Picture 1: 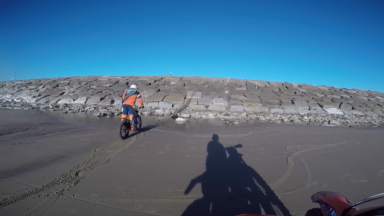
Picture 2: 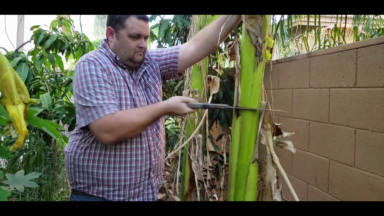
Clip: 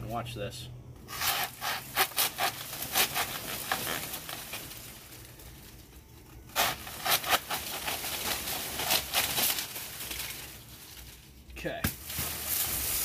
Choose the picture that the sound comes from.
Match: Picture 2